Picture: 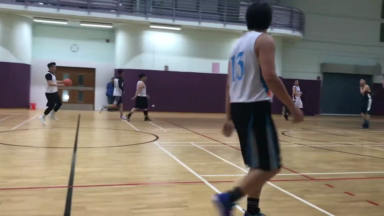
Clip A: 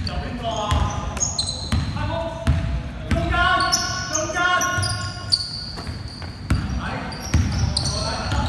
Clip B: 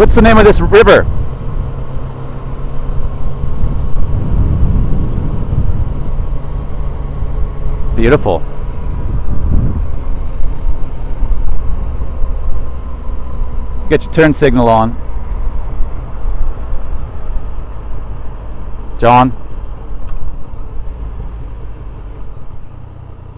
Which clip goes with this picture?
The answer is A